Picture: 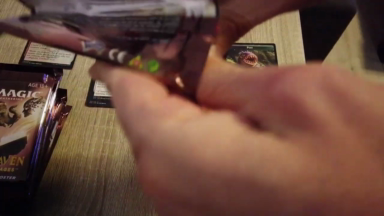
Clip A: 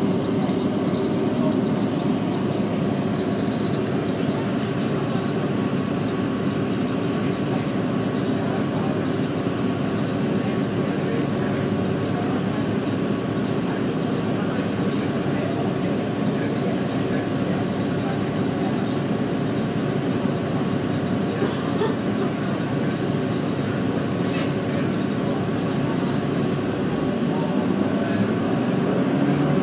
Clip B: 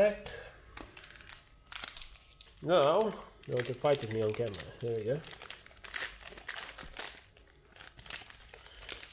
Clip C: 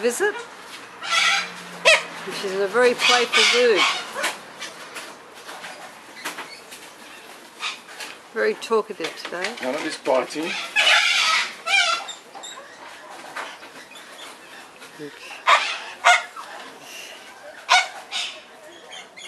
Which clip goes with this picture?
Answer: B